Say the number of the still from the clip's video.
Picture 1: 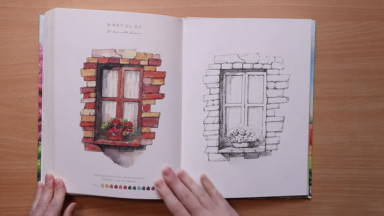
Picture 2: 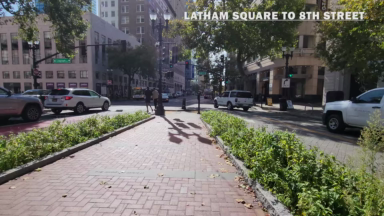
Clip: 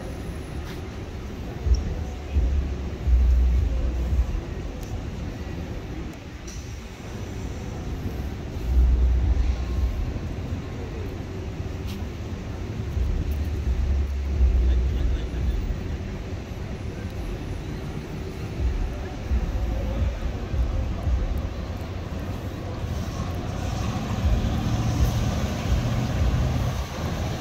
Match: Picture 2